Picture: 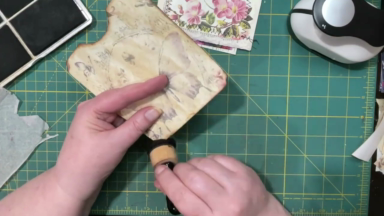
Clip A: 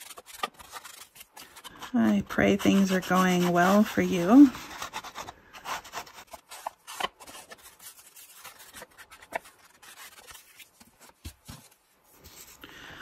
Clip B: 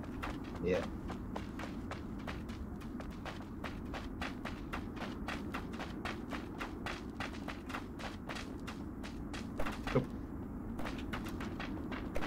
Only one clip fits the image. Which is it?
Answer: A